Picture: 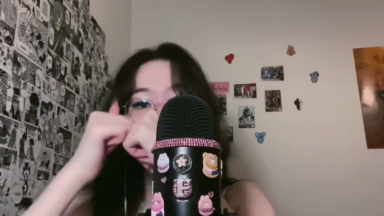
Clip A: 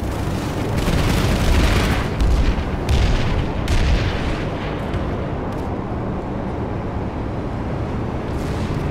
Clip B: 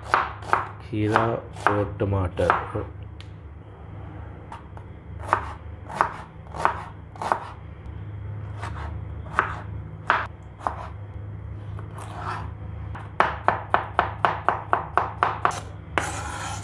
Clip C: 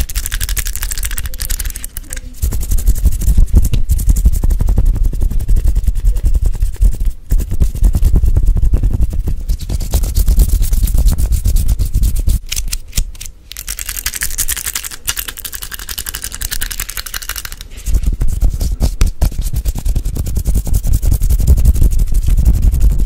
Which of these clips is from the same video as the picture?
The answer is C